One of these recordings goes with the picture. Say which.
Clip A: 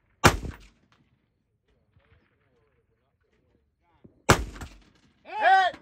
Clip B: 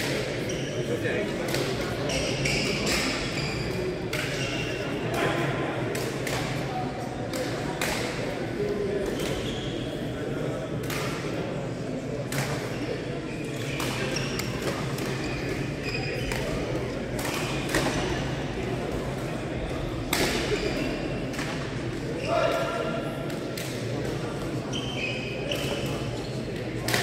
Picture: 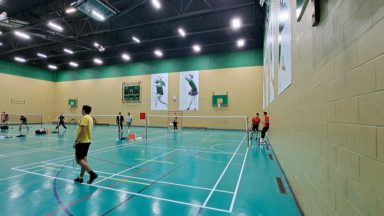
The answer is B